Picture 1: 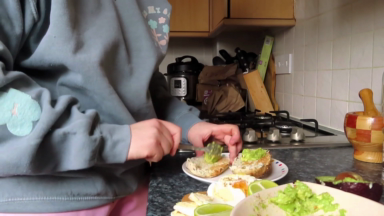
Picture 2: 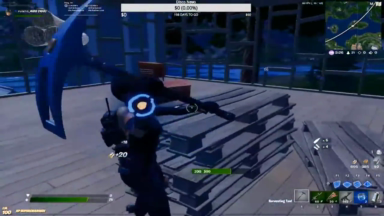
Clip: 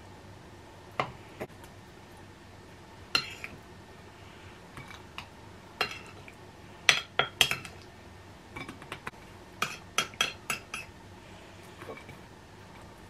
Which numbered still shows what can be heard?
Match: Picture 1